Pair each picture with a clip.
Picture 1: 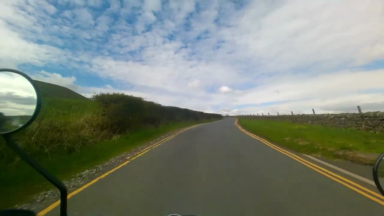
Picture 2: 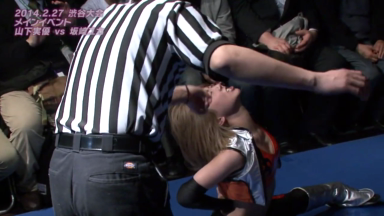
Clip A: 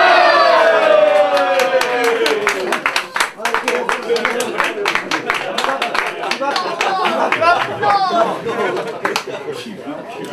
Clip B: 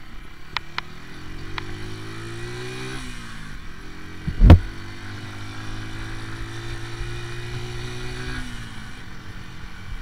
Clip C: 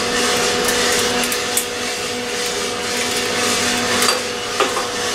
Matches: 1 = B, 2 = A